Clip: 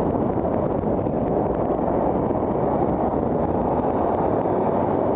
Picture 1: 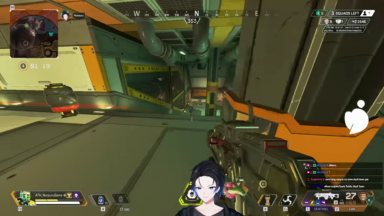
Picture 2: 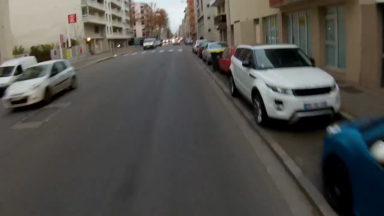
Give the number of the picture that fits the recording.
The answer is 2